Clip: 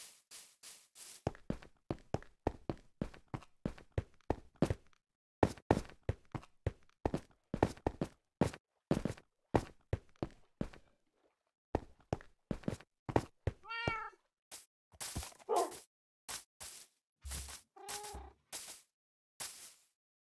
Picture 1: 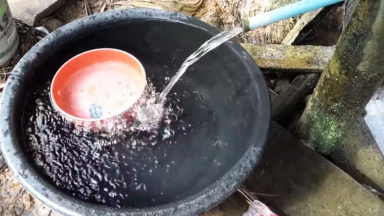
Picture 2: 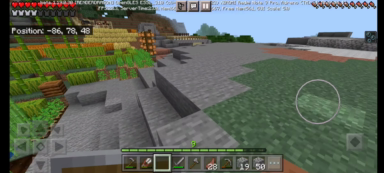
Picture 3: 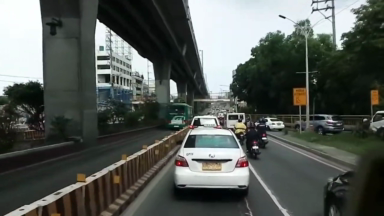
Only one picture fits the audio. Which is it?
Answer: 2